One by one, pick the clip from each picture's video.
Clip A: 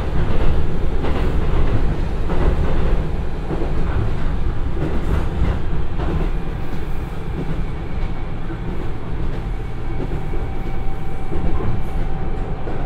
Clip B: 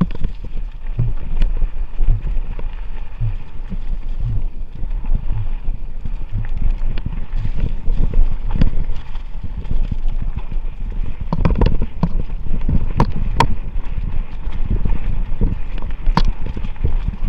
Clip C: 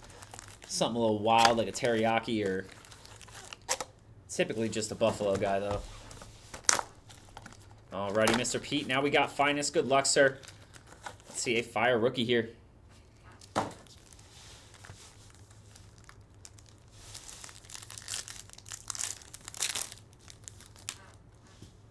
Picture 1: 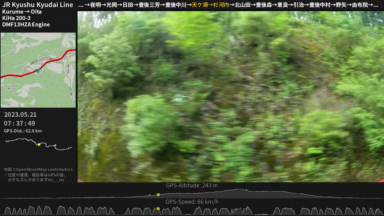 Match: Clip A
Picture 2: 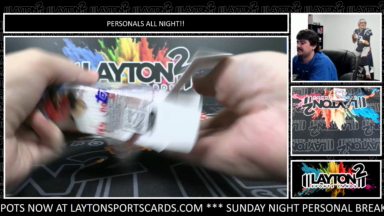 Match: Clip C